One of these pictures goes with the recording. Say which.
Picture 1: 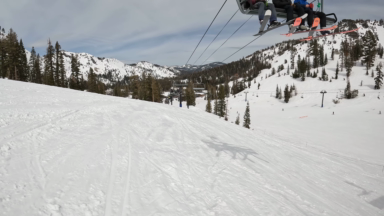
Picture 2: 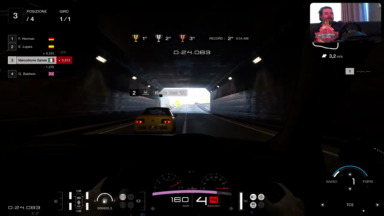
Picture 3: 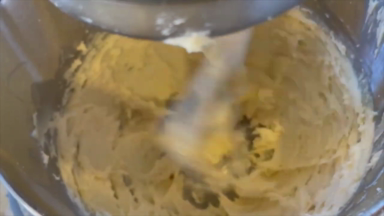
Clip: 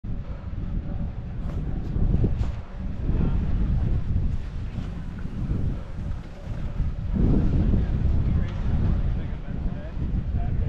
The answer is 1